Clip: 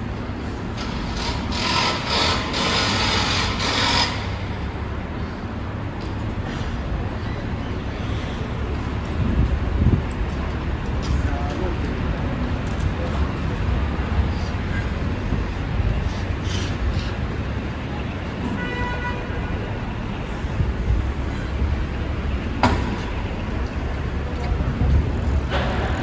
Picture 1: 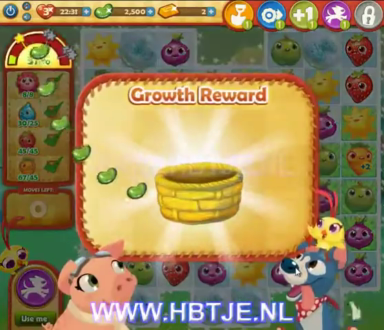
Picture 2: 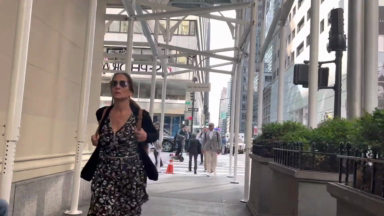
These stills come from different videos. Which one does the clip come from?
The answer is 2